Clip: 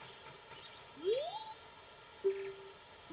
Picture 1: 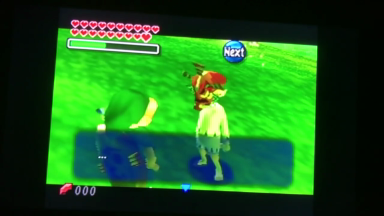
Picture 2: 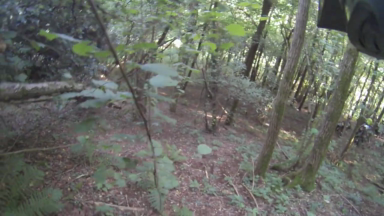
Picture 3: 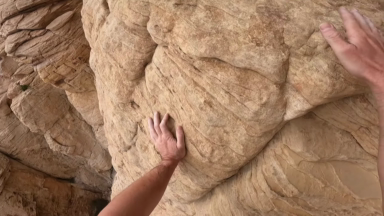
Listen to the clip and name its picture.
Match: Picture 1